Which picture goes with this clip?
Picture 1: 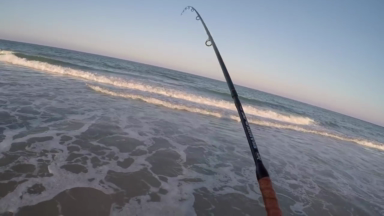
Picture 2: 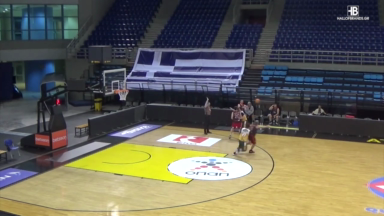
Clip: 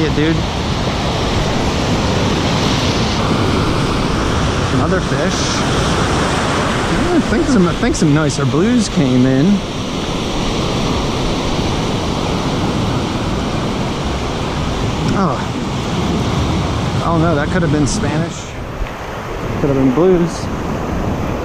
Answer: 1